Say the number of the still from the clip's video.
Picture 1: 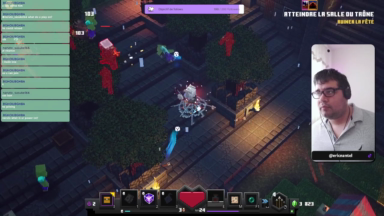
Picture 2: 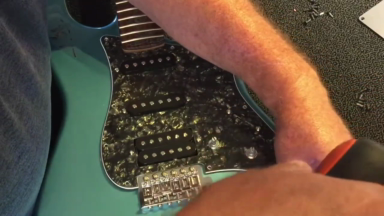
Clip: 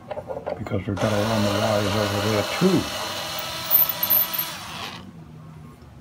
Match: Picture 2